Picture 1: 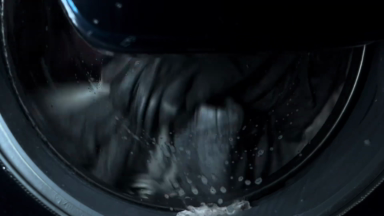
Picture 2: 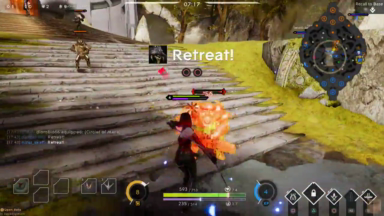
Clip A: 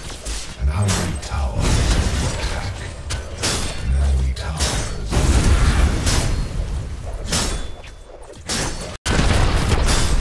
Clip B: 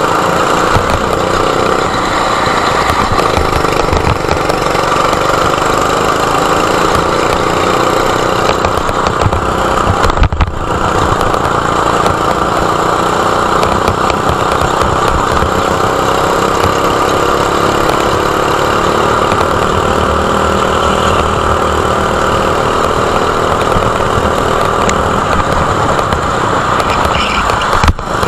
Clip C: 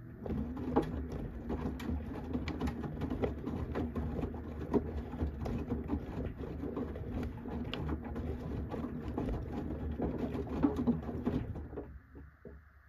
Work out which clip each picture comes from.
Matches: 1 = C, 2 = A